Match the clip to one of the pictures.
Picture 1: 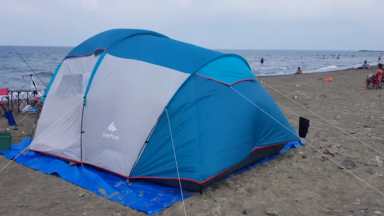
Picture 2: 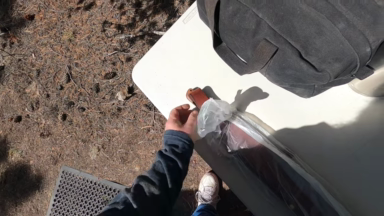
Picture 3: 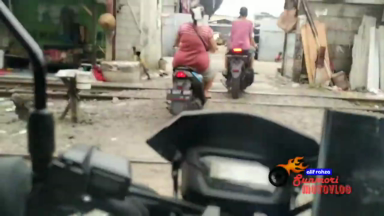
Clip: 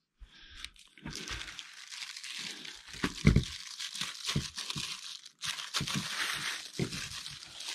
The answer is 2